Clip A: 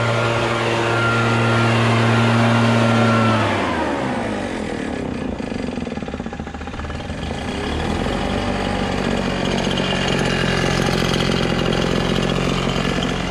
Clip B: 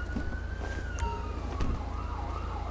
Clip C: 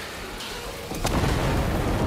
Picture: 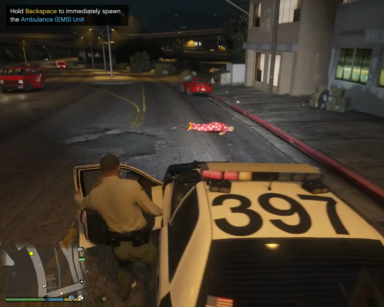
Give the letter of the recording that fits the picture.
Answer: B